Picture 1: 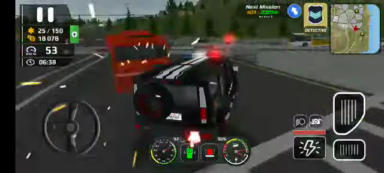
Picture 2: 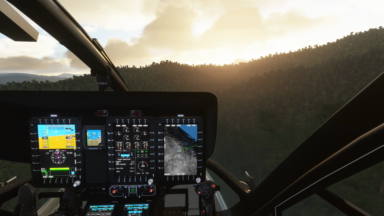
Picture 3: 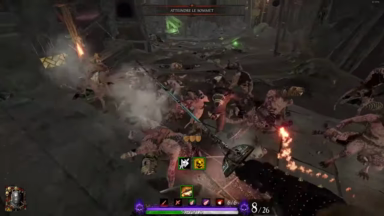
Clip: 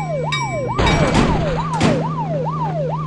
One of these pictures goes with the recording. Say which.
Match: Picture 1